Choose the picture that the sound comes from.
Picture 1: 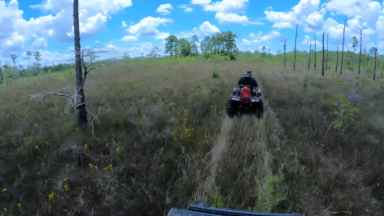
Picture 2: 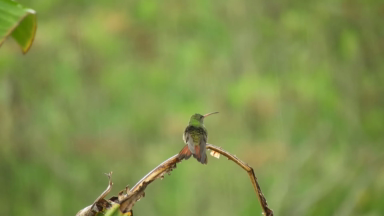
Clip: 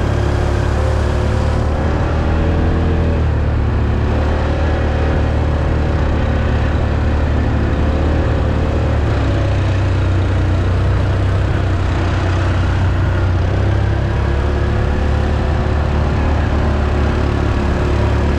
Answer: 1